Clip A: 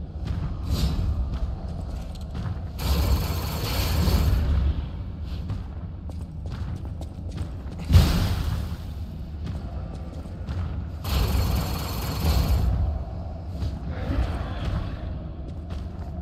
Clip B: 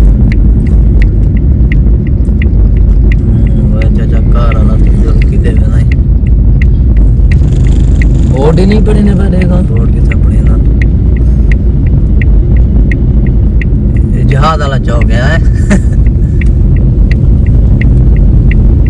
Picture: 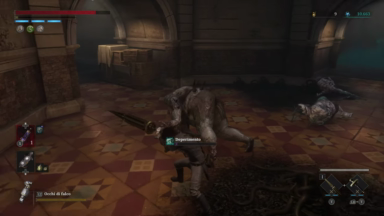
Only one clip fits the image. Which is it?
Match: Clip A